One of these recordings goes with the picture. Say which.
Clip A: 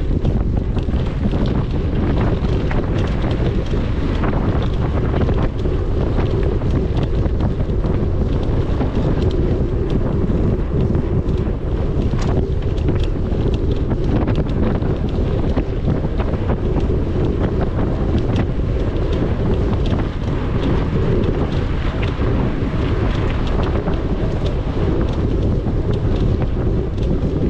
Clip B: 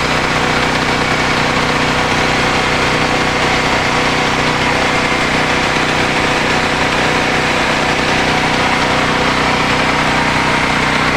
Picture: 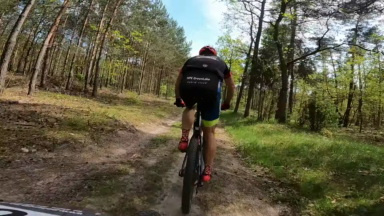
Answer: A